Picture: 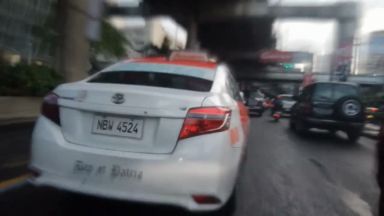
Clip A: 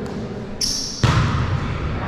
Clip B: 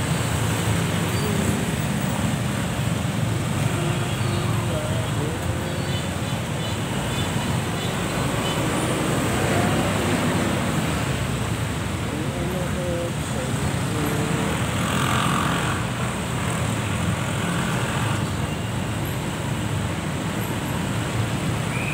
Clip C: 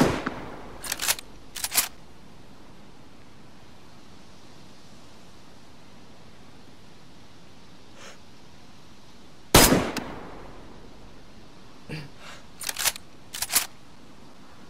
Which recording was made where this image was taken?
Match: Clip B